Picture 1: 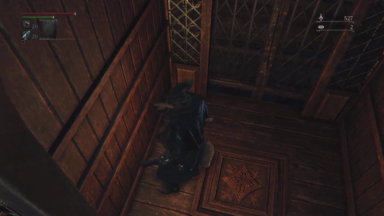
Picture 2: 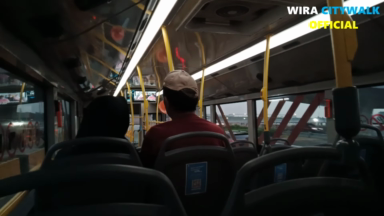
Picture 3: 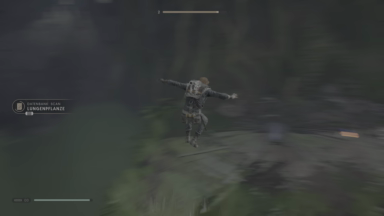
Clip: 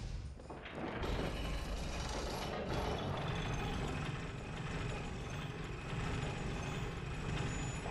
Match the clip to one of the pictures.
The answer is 1